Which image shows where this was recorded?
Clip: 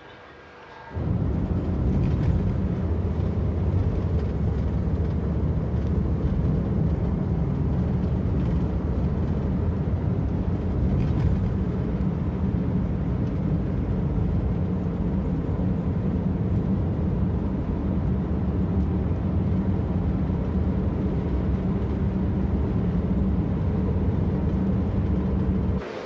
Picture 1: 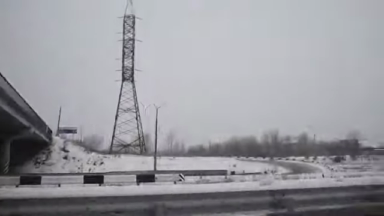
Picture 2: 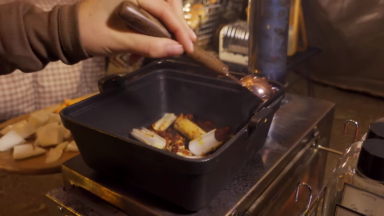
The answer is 1